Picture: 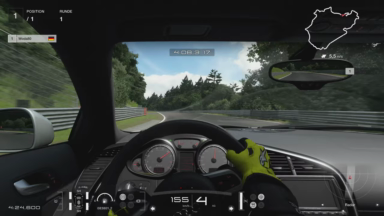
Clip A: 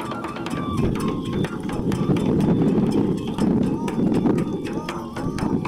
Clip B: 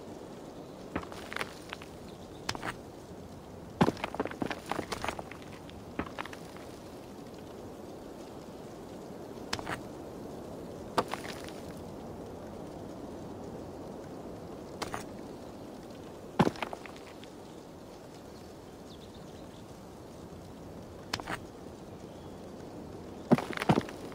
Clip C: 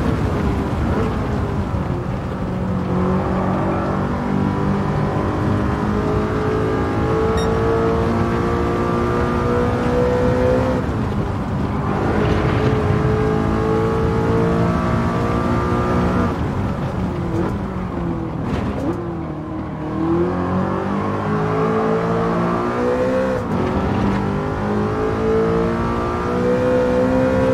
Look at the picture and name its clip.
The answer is C